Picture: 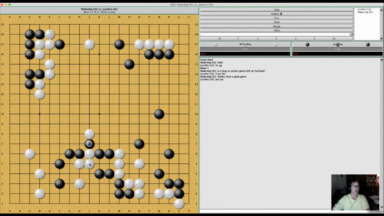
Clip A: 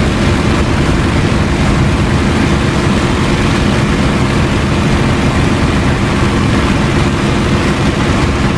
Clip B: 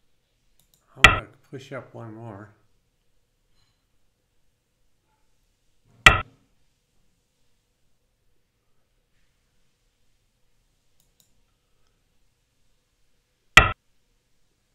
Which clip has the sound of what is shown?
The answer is B